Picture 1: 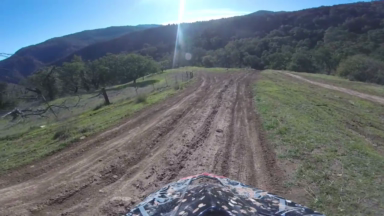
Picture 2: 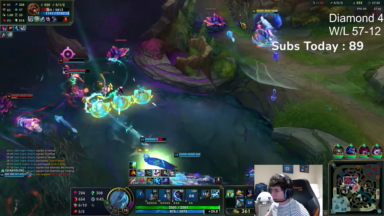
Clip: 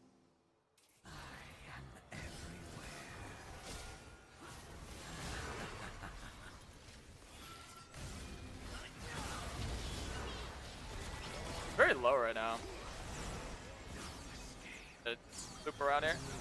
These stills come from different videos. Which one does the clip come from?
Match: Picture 2